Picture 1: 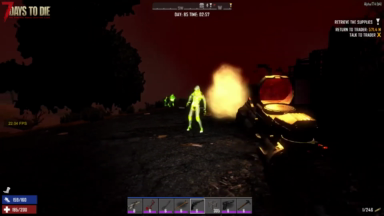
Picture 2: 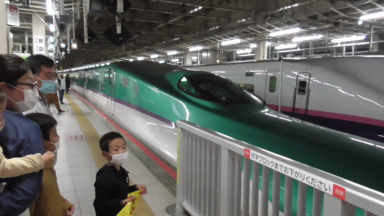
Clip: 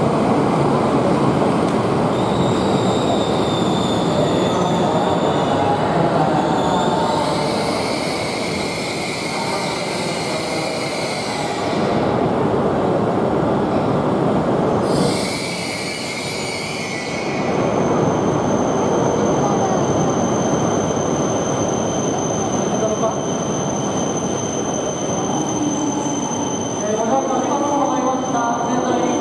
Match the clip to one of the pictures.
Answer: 2